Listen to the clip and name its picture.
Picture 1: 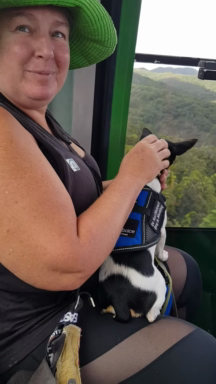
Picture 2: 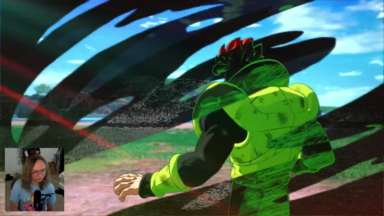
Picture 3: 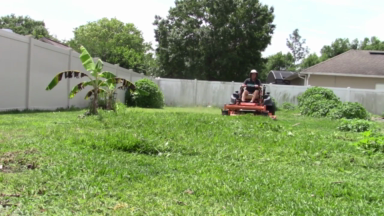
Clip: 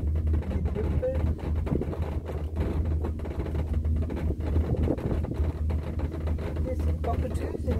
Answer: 1